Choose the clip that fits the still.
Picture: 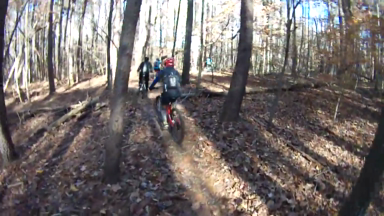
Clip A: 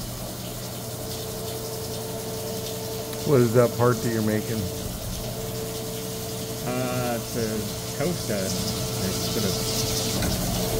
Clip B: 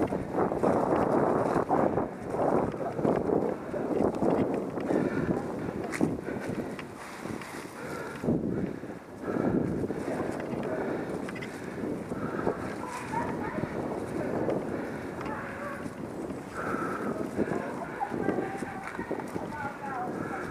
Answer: B